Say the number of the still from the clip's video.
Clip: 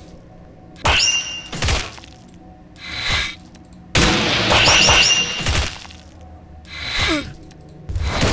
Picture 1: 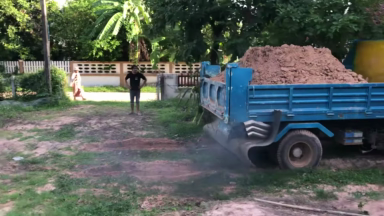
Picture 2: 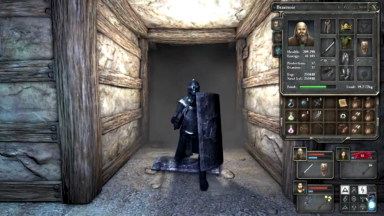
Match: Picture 2